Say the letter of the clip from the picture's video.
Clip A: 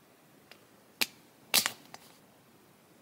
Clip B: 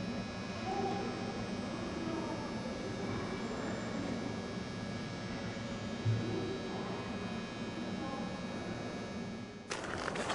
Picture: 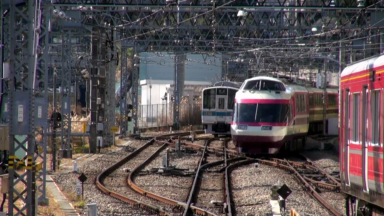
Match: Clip B